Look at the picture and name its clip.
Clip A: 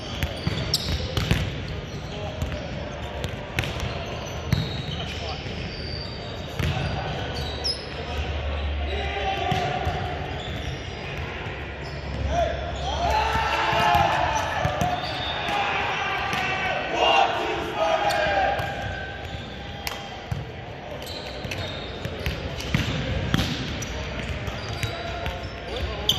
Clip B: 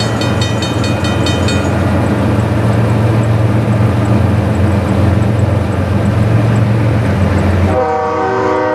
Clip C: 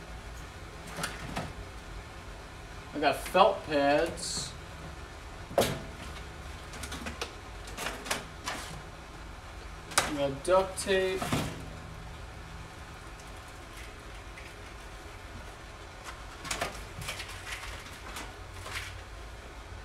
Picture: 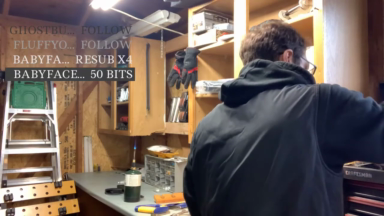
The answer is C